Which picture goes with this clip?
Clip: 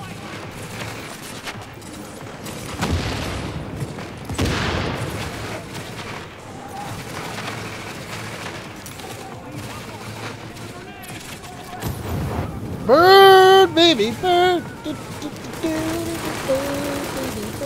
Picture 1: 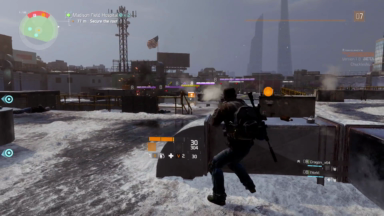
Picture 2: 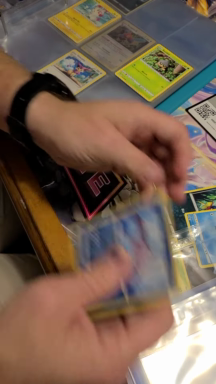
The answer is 1